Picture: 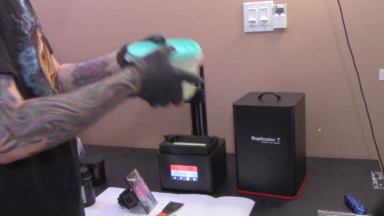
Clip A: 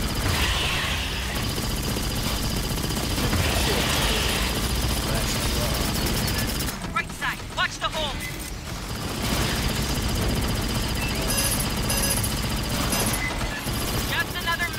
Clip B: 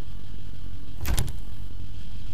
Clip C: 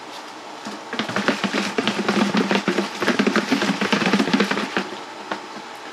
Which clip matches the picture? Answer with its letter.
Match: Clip C